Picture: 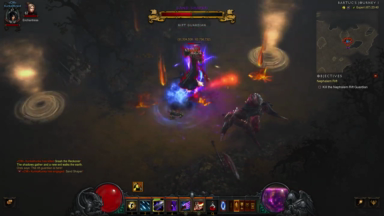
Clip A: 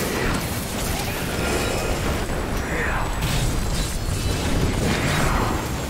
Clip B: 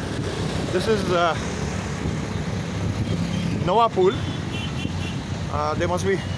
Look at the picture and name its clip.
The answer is A